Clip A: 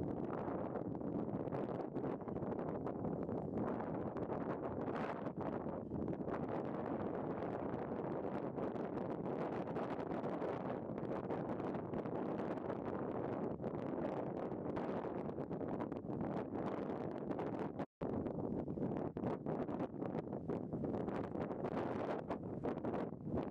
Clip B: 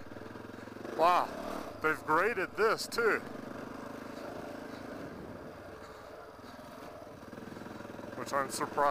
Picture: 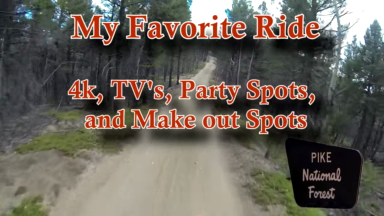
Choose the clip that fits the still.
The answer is B